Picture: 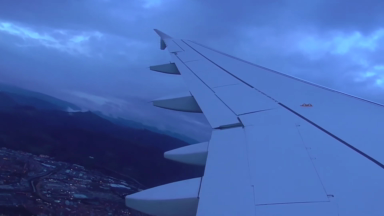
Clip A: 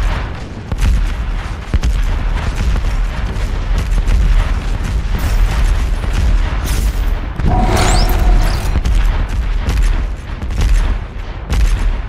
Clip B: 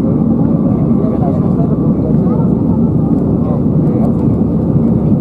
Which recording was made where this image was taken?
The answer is B